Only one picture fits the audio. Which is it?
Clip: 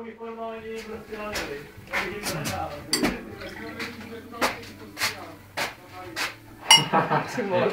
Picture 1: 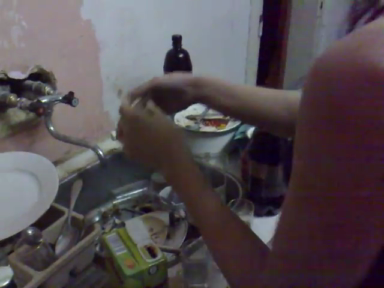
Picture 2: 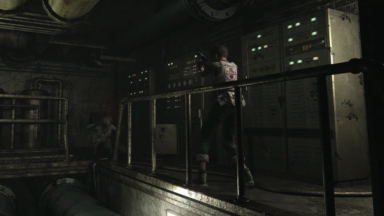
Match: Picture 1